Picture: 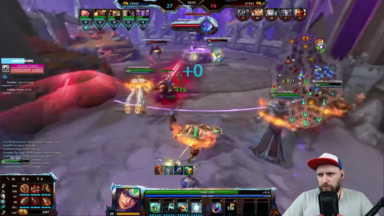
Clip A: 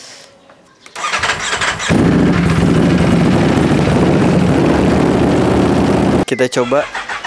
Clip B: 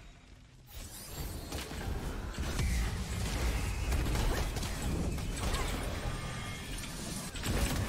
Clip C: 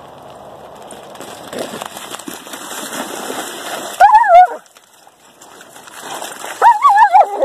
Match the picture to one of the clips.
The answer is B